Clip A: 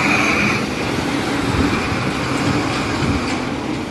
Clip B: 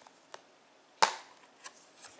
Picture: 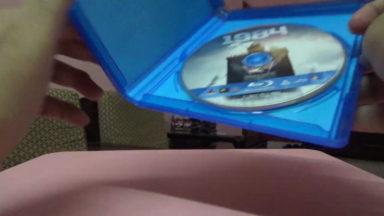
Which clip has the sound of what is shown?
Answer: B